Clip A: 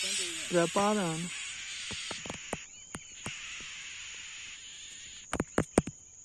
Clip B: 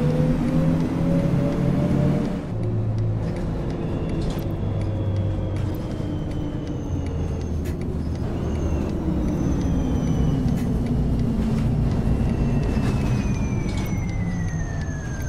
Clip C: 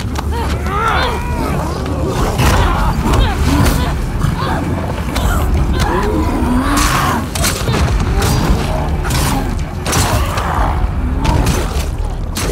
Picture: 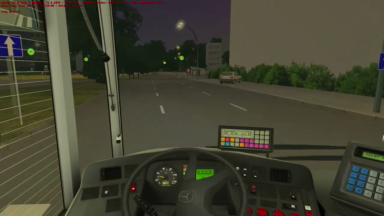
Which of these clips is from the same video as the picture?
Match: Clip B